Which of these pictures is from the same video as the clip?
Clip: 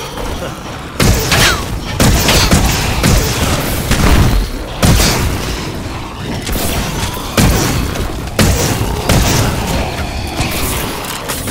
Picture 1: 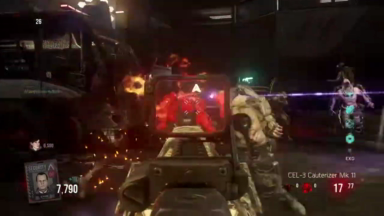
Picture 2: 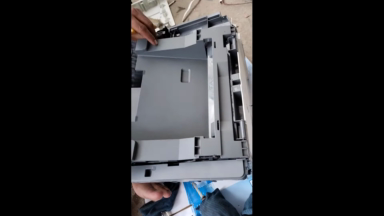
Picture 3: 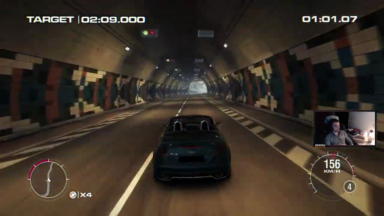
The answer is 1